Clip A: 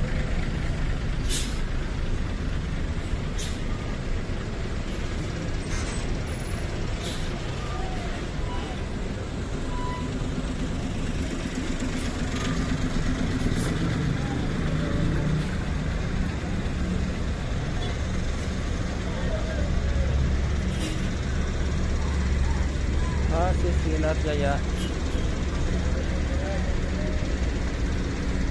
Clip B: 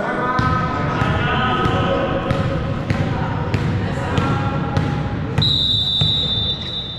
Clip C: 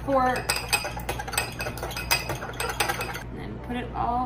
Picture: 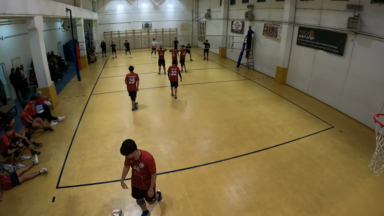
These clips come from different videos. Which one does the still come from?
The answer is B